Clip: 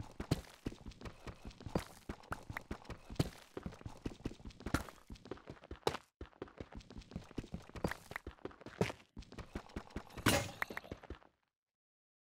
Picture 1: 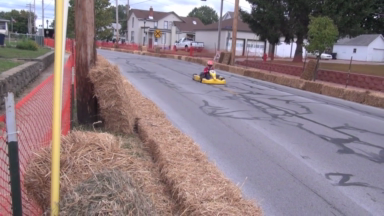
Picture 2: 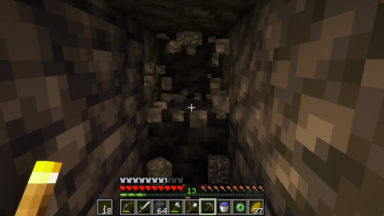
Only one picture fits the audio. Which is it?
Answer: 2